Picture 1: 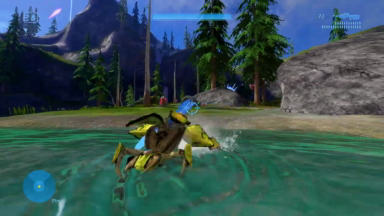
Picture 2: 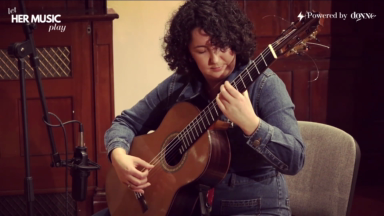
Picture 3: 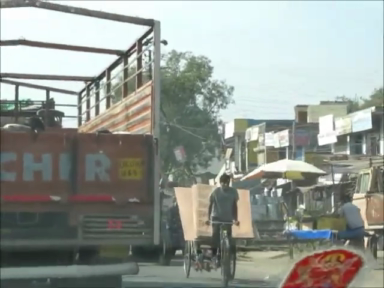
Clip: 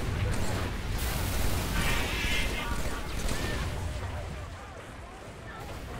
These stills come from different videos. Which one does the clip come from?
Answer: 1